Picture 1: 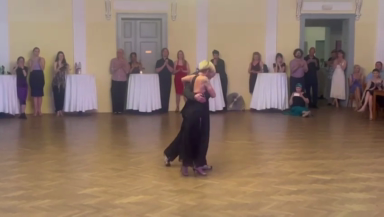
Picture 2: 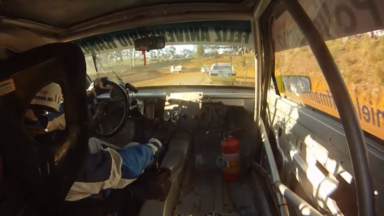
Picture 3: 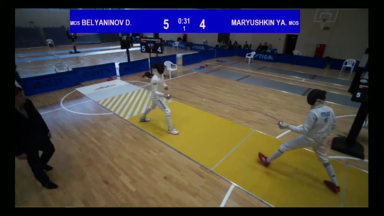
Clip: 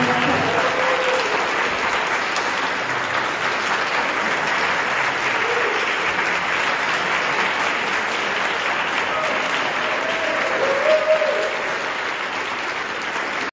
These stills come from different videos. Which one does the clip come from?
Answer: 1